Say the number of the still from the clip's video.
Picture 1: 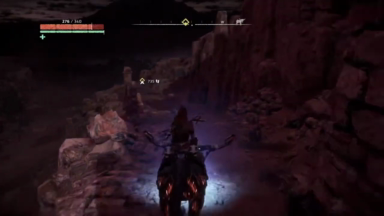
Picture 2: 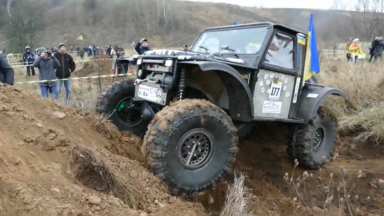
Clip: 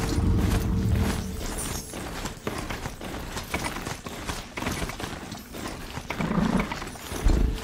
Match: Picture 1